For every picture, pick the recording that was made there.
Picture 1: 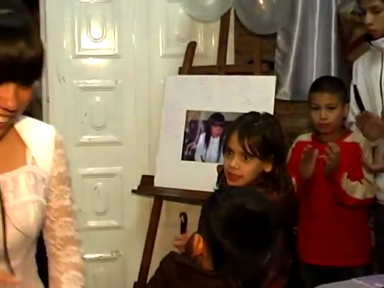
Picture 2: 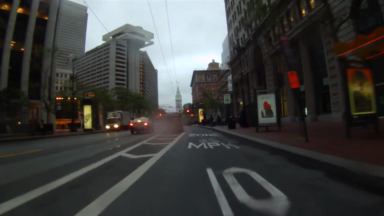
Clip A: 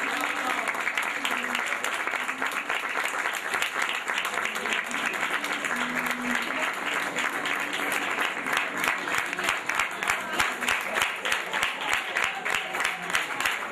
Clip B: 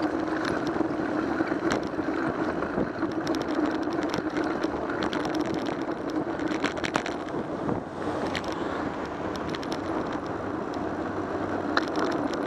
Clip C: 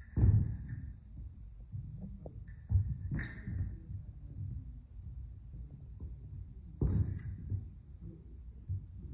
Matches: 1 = A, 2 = B